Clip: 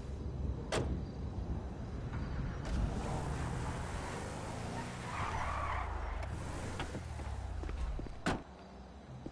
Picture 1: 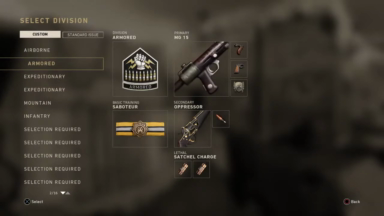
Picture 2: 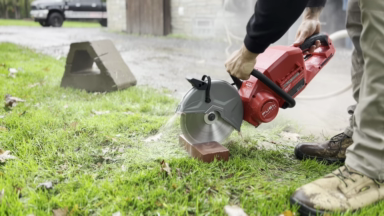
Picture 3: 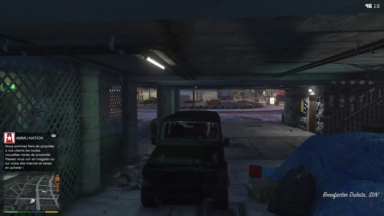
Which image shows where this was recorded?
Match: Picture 3